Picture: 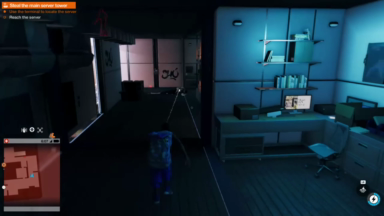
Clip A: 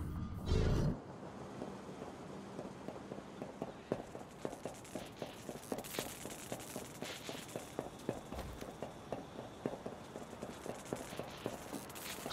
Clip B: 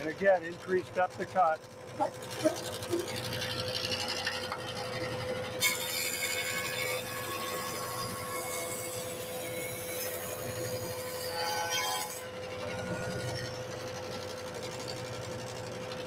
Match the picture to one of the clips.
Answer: A